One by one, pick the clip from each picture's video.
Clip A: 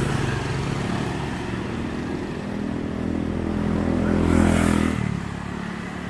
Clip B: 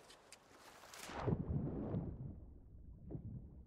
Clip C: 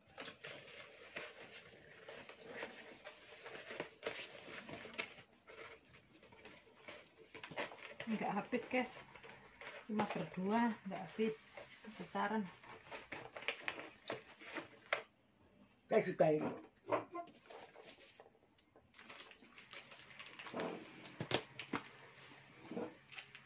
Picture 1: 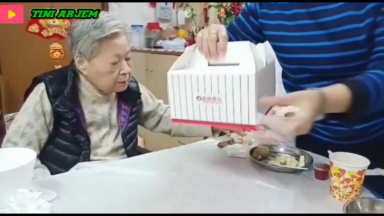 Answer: C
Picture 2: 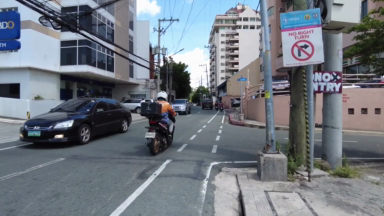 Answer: A